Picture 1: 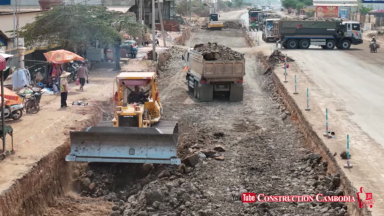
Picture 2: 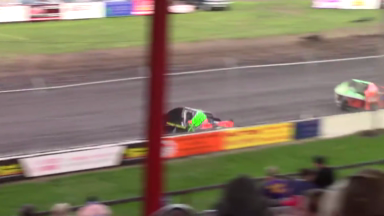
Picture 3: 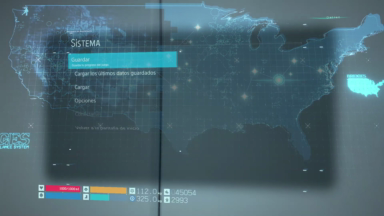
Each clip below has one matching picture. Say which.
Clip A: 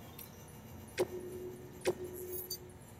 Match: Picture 3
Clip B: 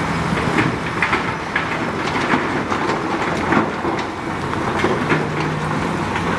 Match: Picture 1